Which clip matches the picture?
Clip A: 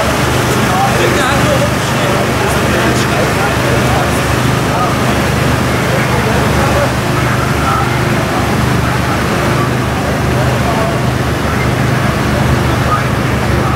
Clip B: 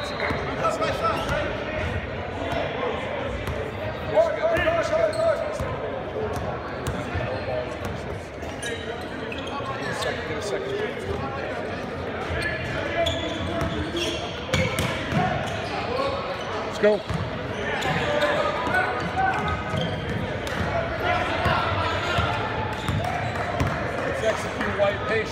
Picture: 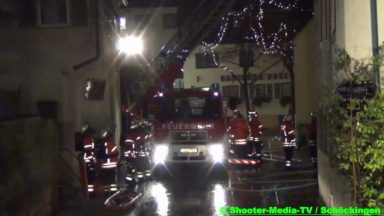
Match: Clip A